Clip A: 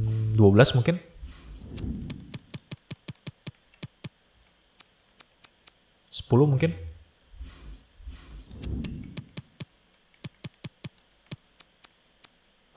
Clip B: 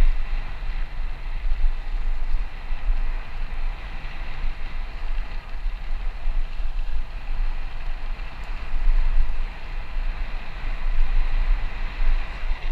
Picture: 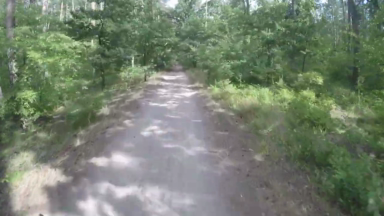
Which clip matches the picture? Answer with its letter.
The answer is B